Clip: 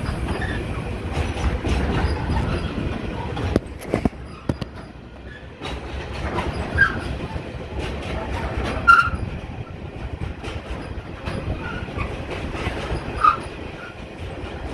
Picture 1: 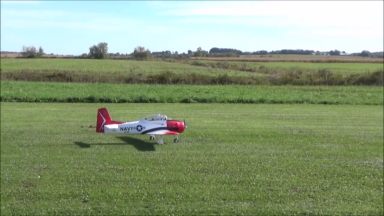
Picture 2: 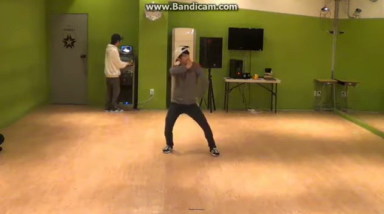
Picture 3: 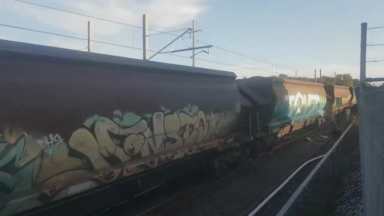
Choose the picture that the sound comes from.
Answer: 3